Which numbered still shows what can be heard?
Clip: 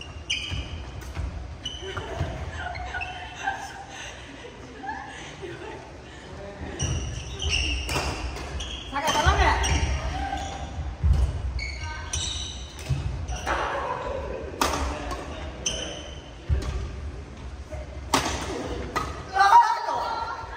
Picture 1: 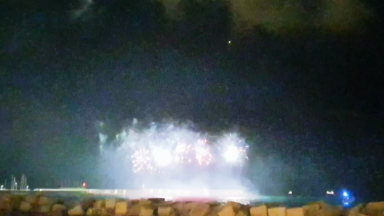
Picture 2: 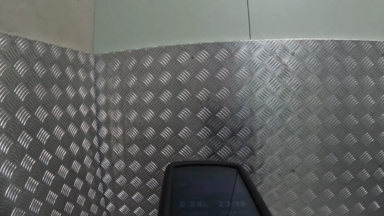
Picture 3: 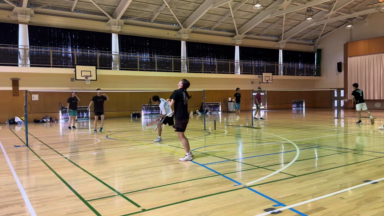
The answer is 3